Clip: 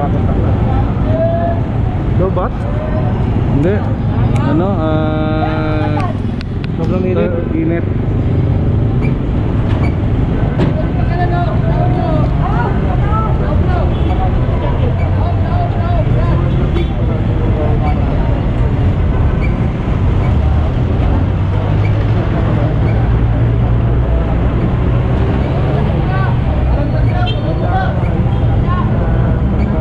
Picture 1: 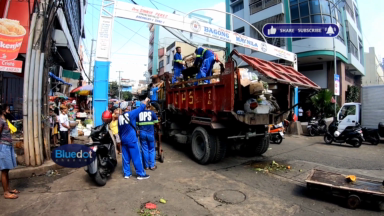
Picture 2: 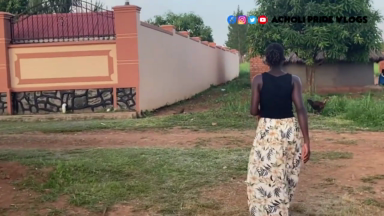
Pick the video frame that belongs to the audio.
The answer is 1